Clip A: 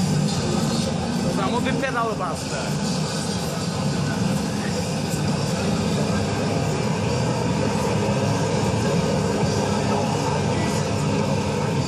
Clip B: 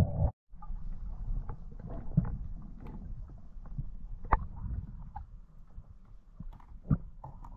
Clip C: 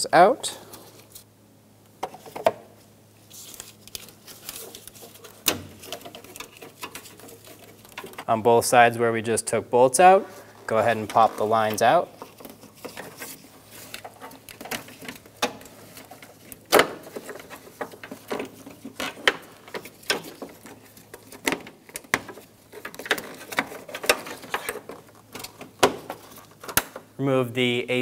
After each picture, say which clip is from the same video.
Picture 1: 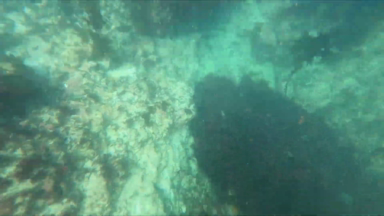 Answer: B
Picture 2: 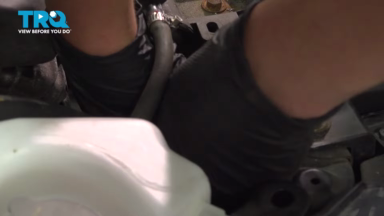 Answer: C